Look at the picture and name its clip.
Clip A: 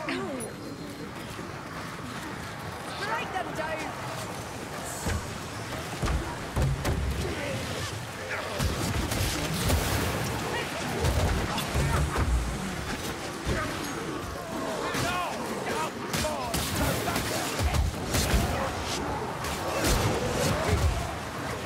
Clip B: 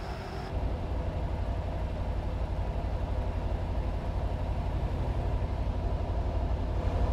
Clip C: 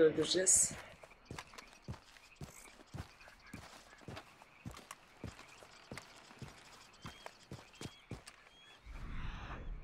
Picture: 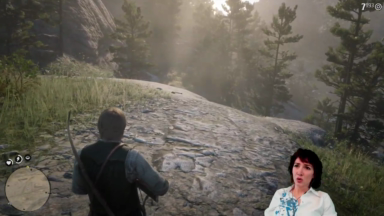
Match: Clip C